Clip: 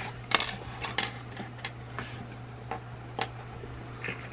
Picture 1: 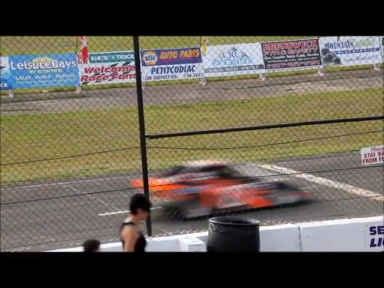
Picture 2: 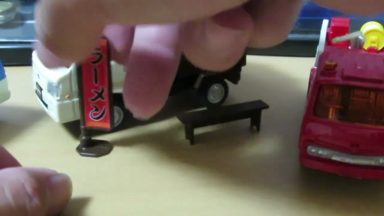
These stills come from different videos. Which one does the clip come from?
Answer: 2